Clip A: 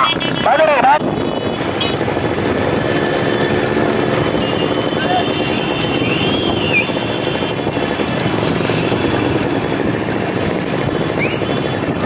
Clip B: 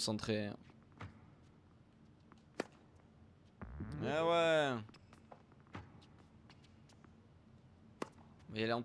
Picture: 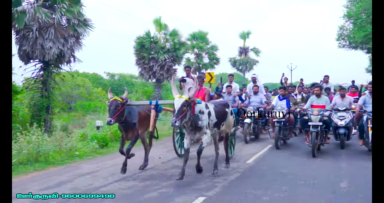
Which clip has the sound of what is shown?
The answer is A